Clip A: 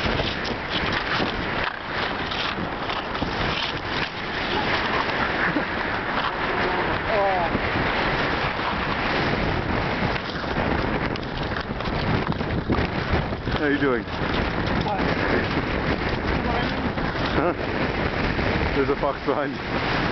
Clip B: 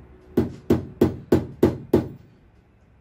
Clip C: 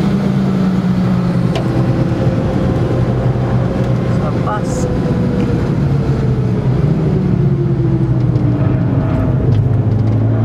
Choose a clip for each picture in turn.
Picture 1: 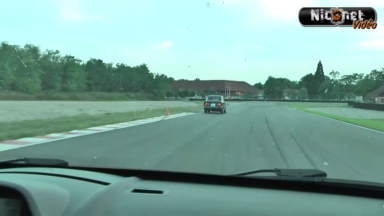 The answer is C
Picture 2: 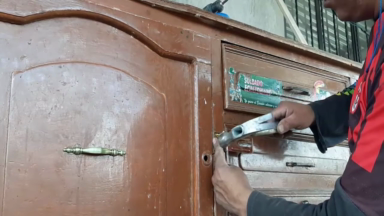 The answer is B